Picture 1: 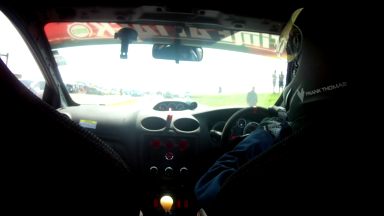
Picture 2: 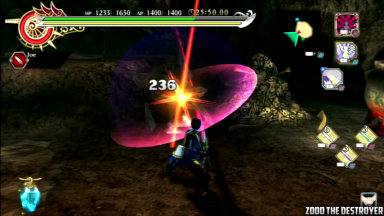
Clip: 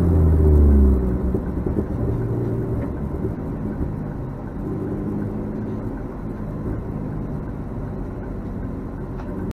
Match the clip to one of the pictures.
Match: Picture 1